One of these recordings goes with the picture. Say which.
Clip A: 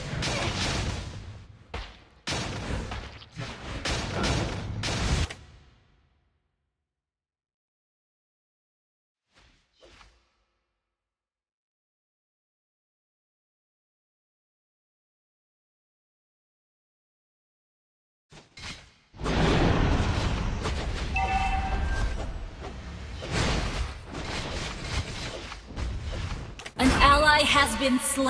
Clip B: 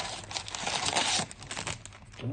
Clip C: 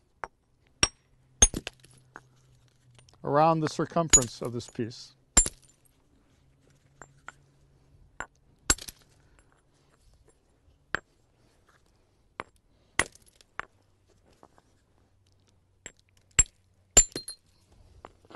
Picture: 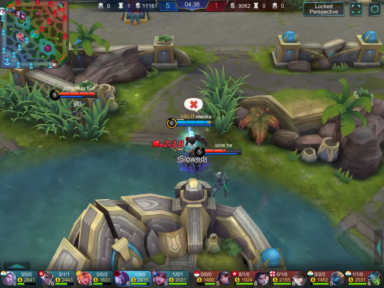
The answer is A